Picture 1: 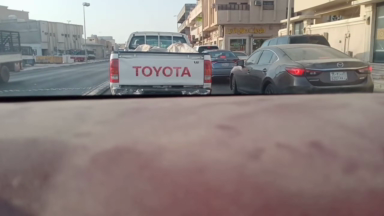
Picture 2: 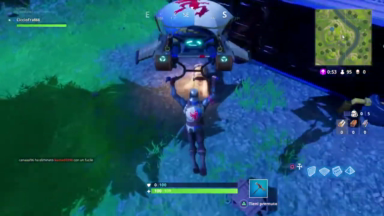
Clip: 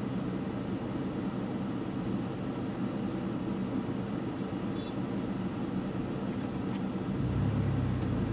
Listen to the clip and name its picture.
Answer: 1